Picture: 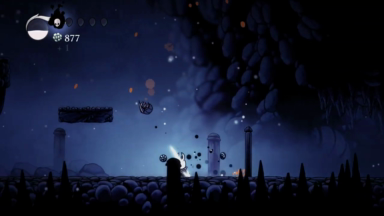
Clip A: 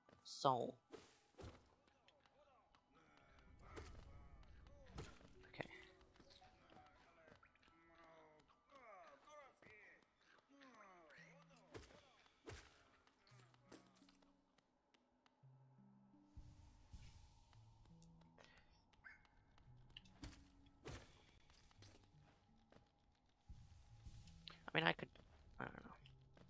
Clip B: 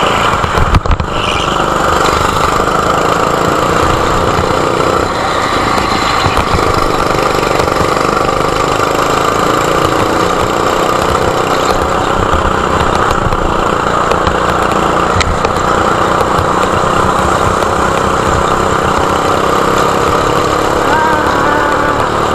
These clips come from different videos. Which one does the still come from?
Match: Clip A